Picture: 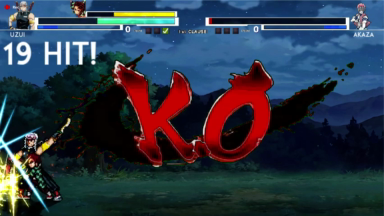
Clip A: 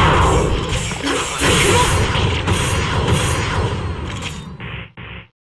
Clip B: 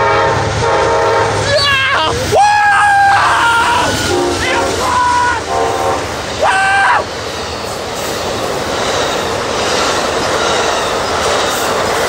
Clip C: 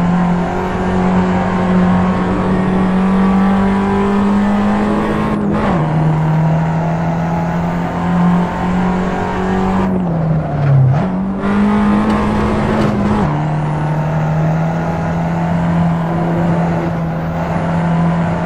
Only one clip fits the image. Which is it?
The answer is A